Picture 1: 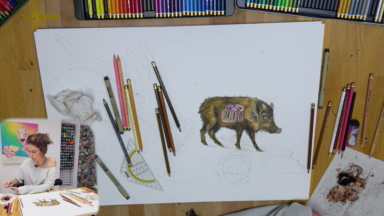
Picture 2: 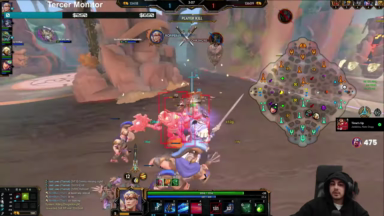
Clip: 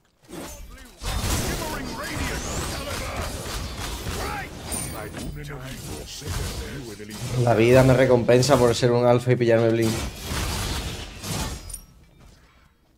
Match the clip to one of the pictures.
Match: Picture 2